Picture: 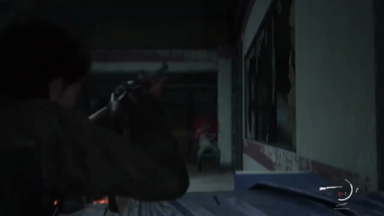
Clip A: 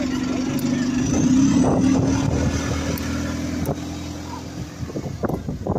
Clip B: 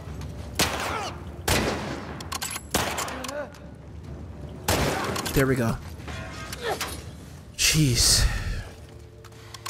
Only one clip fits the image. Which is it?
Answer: B